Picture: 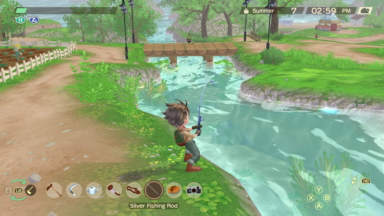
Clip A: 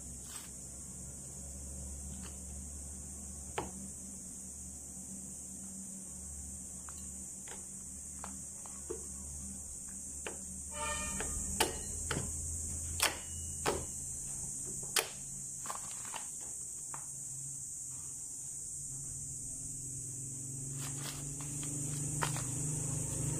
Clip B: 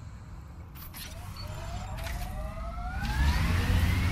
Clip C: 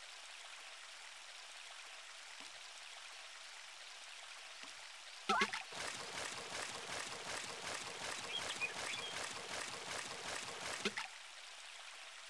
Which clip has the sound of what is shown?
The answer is C